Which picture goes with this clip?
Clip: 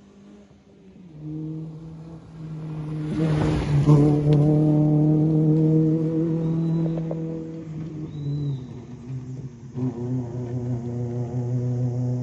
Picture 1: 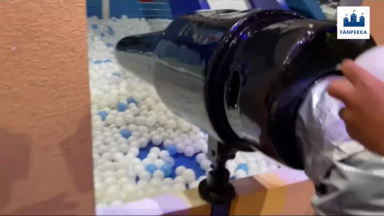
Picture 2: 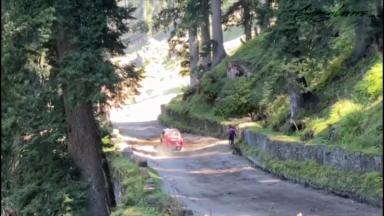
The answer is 2